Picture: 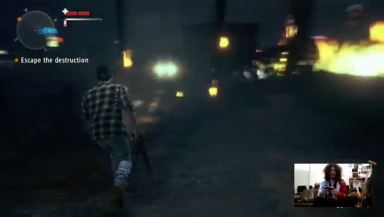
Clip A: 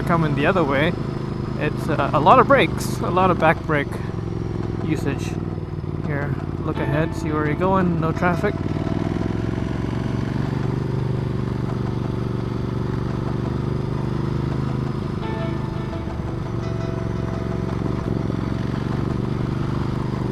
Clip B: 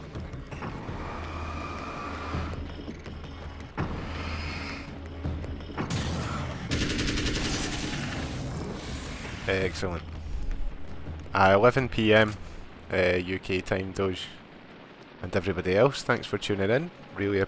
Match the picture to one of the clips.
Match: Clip B